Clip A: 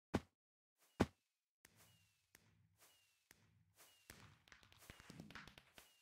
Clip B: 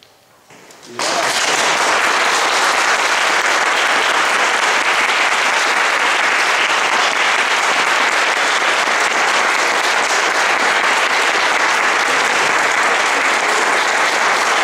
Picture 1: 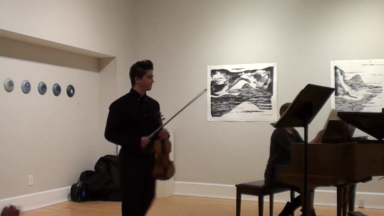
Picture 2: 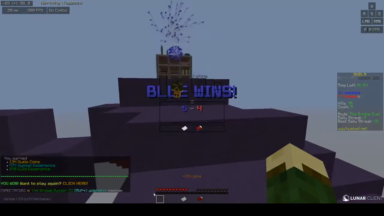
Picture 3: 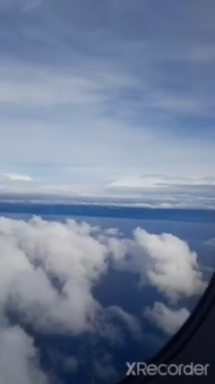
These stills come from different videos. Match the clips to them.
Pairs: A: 2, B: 1